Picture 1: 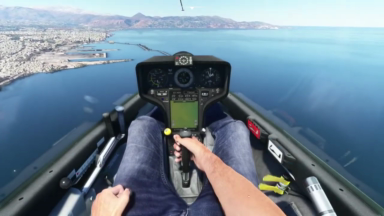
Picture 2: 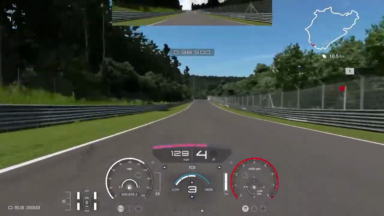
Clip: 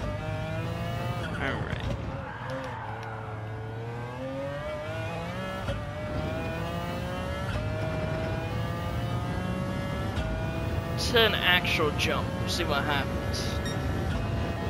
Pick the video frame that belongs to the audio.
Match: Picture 2